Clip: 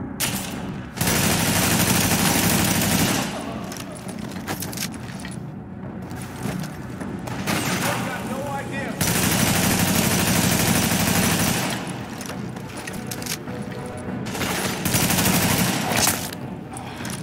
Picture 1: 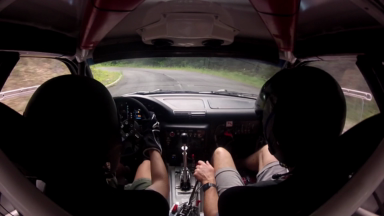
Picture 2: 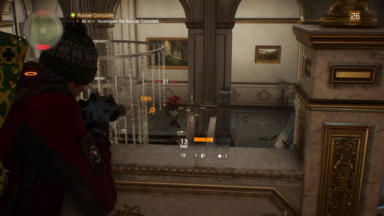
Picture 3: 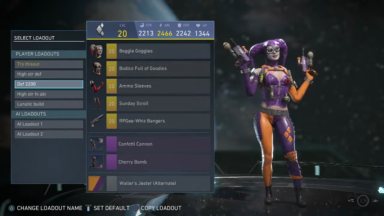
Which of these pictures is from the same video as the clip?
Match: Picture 2